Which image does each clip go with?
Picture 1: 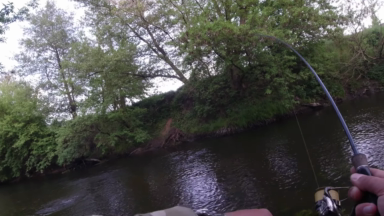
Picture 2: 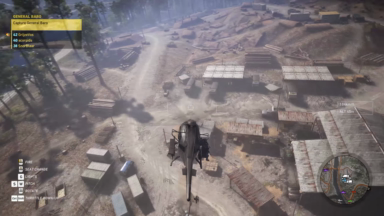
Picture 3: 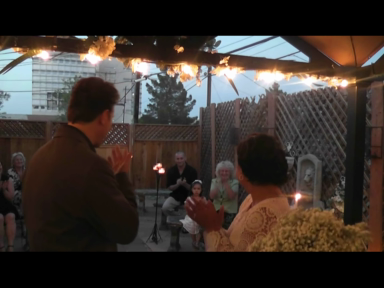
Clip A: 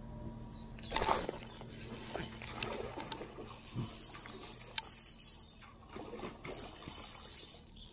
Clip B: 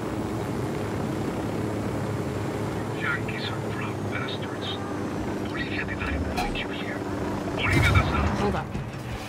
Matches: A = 1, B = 2